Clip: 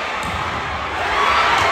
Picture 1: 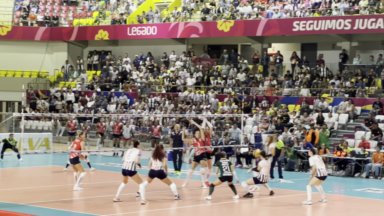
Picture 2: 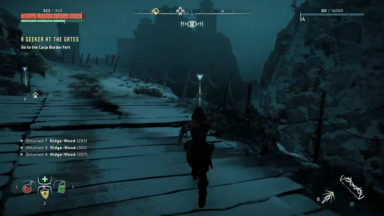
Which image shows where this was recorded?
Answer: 1